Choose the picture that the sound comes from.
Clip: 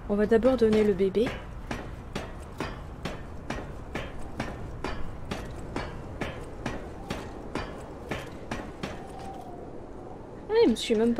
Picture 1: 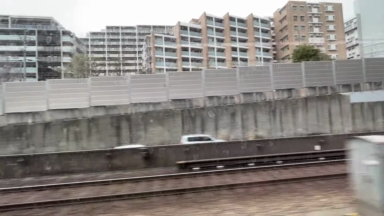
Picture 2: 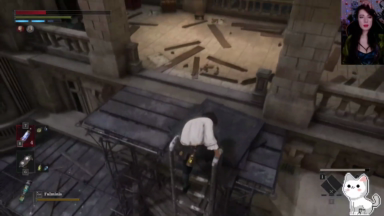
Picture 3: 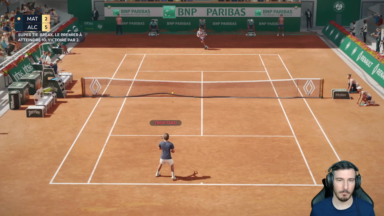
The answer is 2